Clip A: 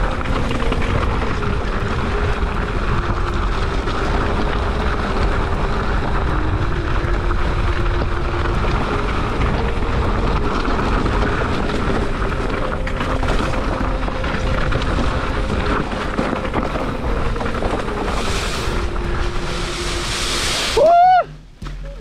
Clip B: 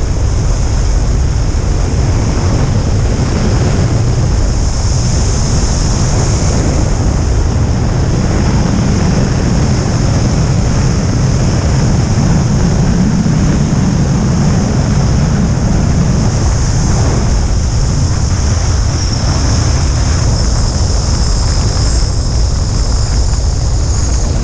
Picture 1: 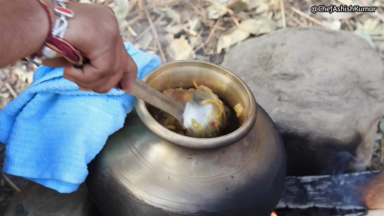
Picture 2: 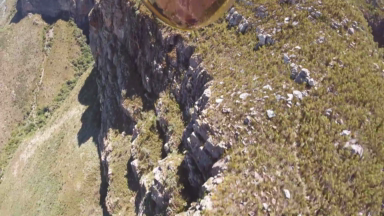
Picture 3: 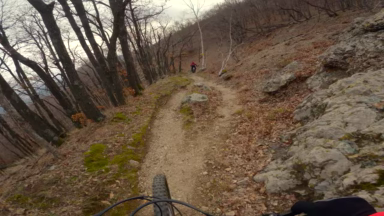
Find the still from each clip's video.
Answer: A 3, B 2